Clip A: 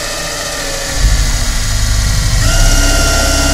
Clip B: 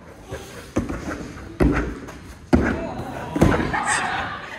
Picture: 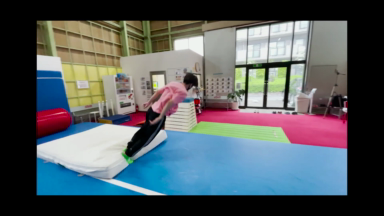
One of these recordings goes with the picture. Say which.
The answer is B